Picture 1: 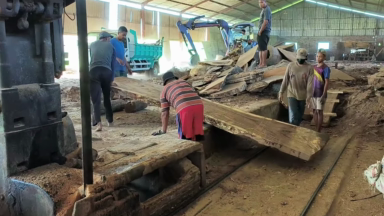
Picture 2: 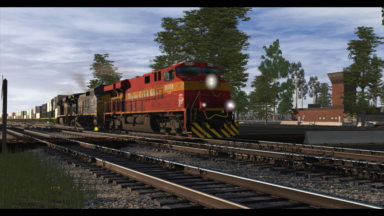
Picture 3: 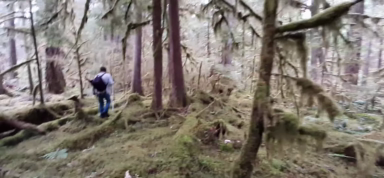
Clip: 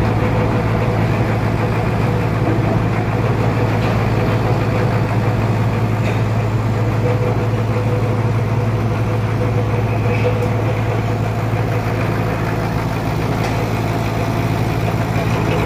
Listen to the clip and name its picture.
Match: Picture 1